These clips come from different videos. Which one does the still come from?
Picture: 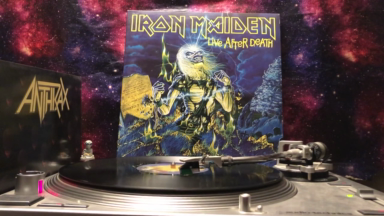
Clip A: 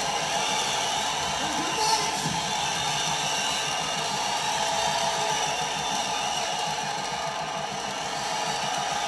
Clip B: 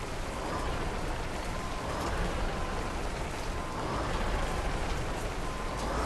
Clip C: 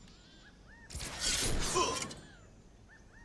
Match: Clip A